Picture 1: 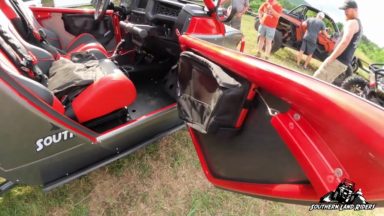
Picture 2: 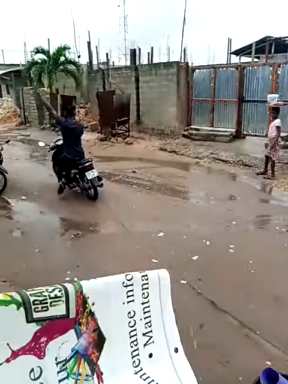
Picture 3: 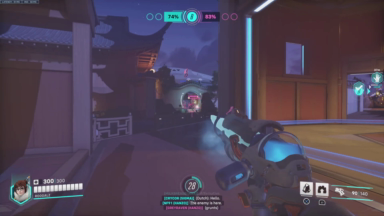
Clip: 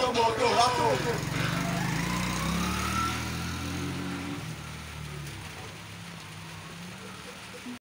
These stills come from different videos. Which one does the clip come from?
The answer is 2